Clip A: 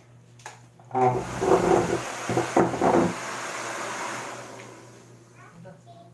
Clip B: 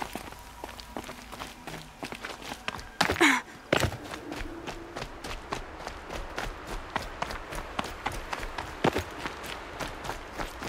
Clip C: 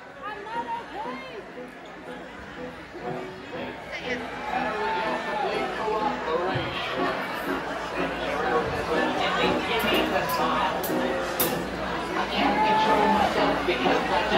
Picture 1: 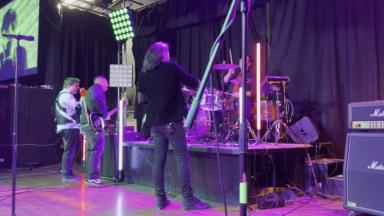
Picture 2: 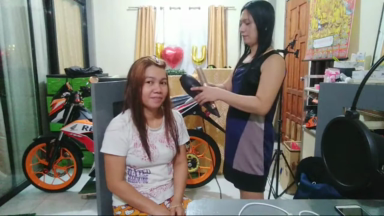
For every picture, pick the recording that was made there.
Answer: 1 C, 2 A